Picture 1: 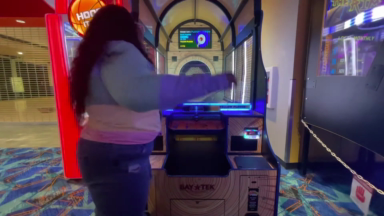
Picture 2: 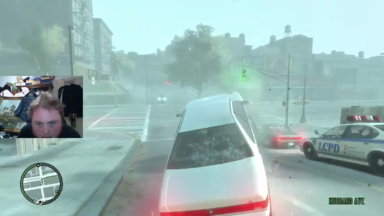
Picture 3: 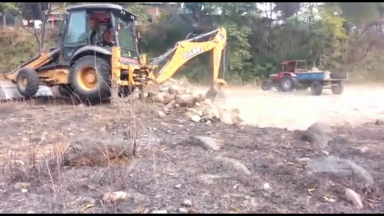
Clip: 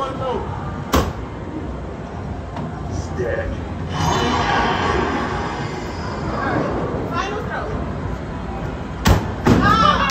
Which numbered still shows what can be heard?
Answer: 1